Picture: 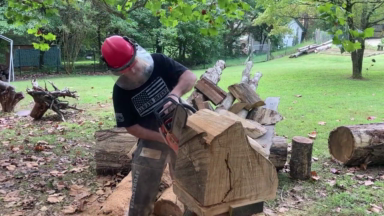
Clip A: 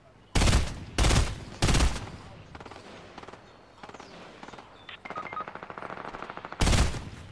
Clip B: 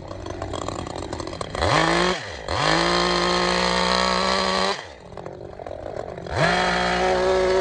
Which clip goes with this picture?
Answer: B